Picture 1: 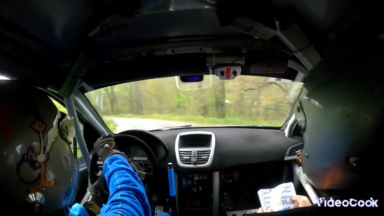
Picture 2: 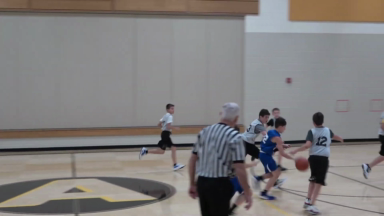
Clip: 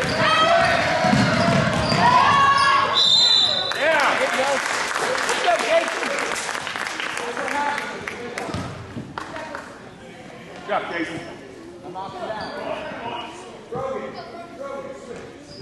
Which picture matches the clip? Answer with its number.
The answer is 2